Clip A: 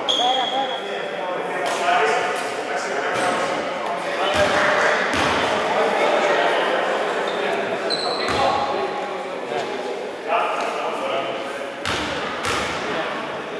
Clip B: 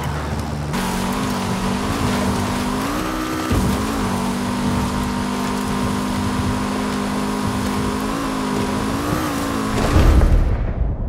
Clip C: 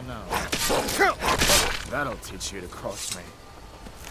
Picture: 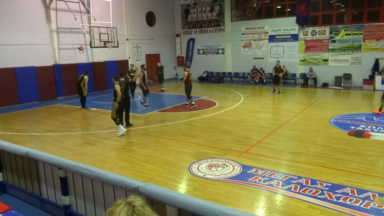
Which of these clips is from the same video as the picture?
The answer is A